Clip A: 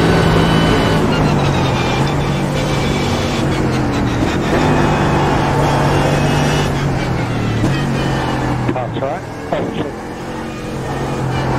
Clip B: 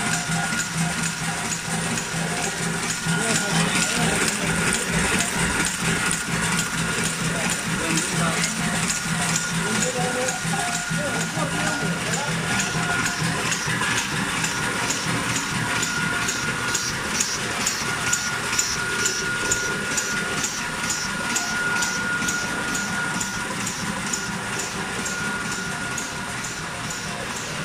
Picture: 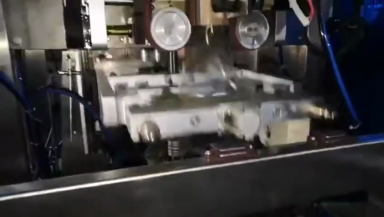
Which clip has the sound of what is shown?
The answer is B